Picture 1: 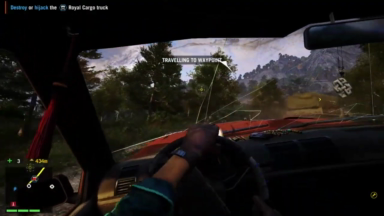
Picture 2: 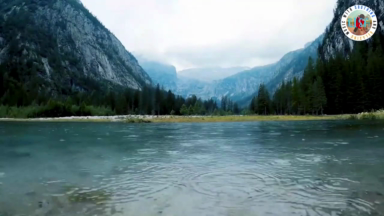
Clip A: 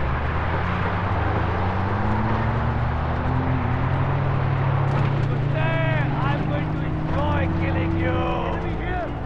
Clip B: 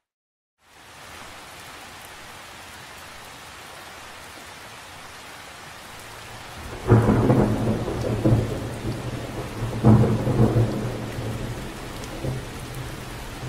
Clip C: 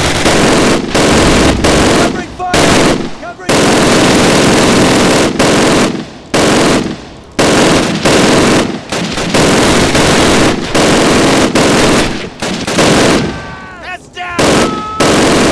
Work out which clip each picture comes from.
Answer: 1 A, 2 B